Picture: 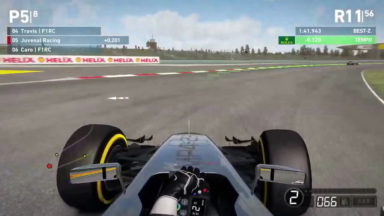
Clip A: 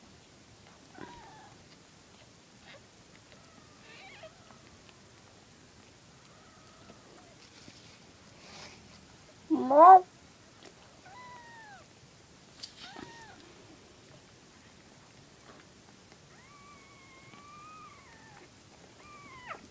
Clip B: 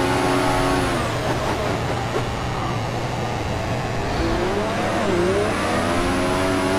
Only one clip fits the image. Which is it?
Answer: B